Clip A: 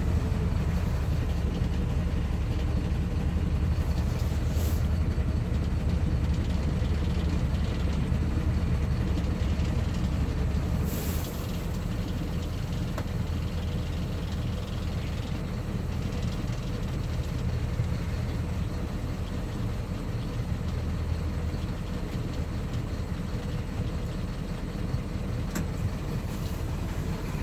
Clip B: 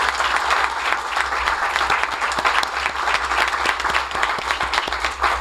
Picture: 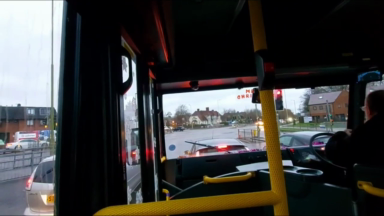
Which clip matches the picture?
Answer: A